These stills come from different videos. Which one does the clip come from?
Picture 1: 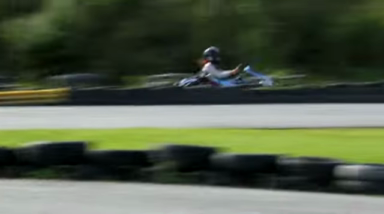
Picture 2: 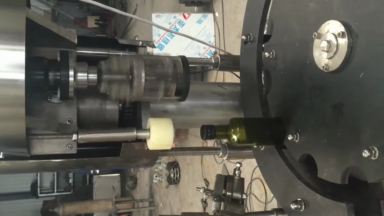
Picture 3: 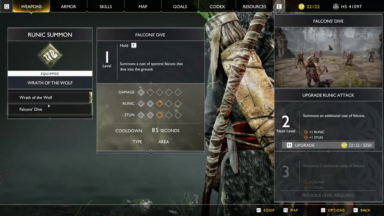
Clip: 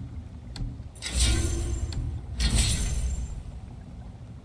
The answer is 3